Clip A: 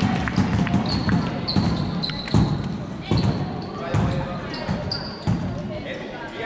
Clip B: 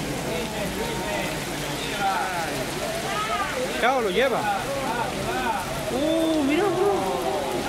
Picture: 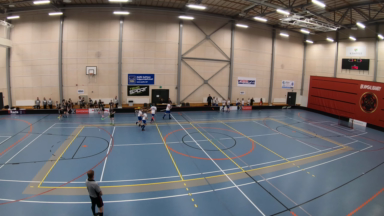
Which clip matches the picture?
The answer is A